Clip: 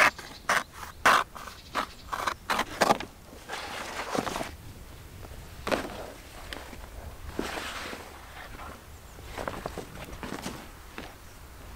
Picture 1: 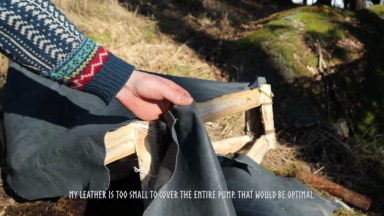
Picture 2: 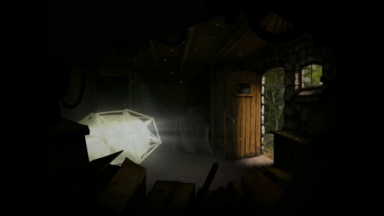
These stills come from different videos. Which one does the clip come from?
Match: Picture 1